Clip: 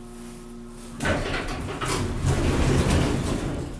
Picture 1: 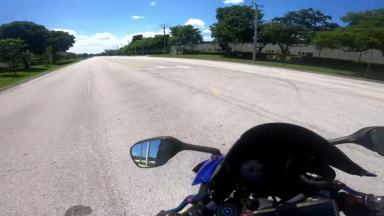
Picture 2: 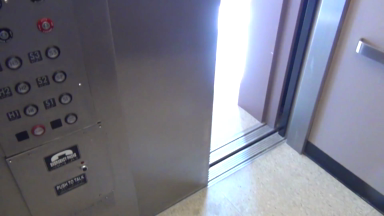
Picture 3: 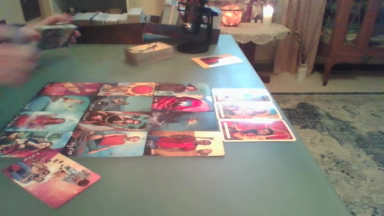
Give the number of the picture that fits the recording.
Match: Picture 2